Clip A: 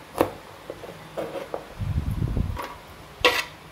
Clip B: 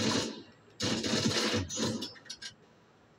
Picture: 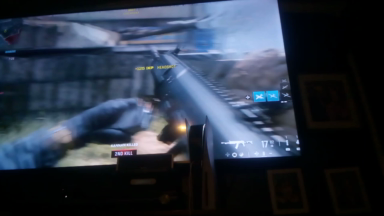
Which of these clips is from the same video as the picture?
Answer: B